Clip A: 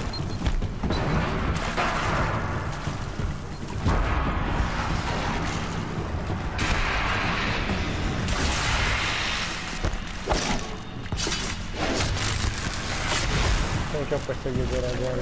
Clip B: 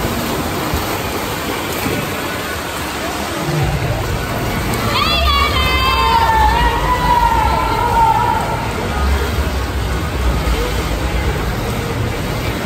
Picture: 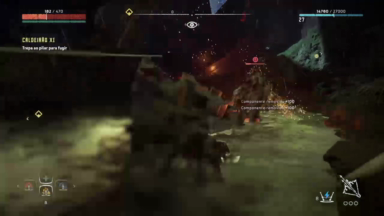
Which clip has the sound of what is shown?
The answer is A